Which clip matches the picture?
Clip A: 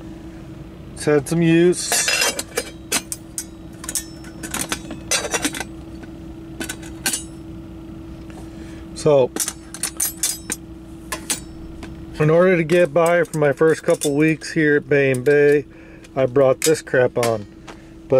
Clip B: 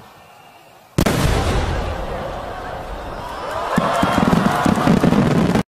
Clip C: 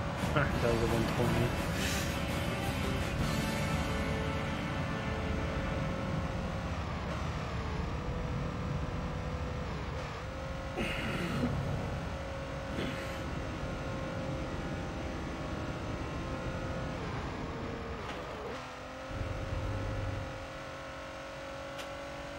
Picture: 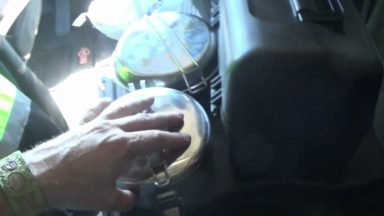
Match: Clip A